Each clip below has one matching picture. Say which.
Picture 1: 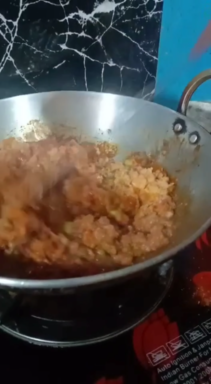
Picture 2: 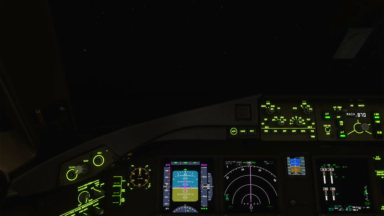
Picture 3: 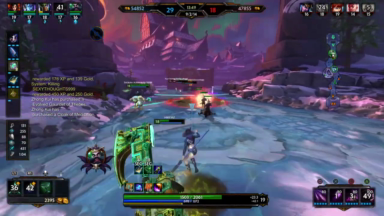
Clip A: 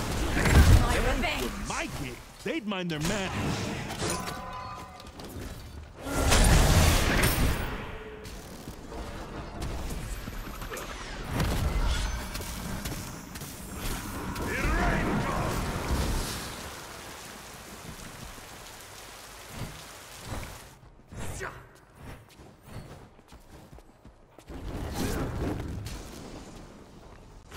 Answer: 3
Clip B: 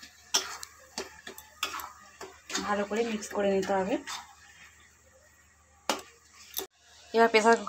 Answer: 1